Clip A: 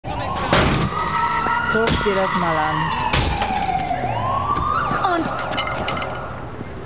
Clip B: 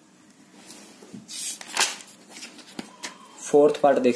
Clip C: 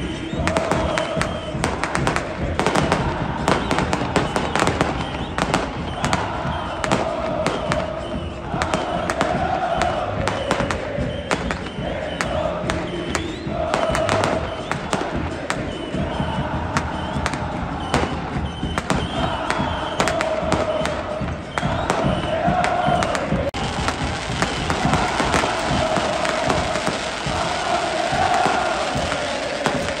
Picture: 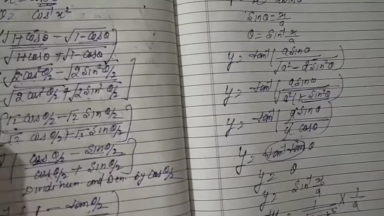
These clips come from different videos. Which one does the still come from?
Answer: B